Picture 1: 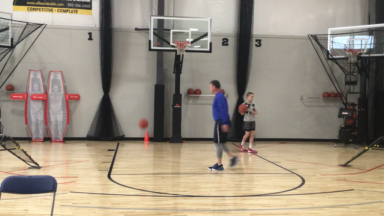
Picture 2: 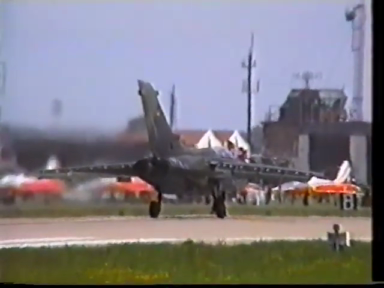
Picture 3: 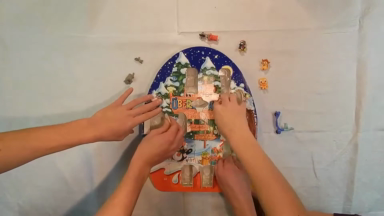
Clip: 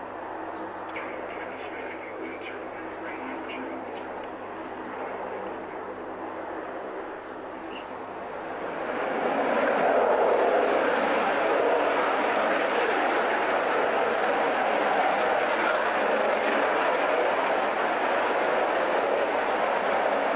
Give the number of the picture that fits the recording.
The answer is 2